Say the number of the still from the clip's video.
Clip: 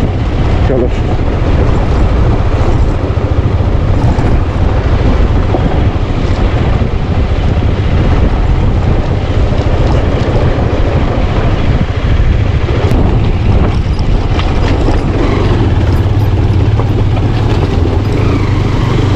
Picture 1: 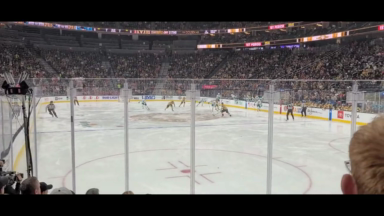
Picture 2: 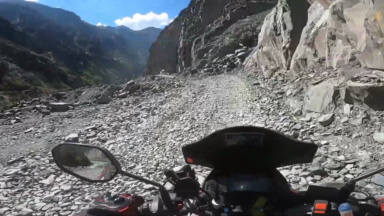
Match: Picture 2